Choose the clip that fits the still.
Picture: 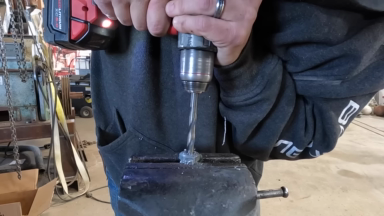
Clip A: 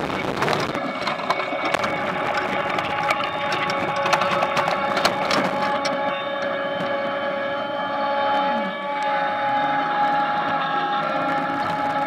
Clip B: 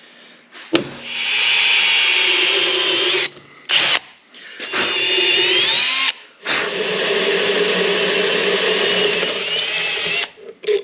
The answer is B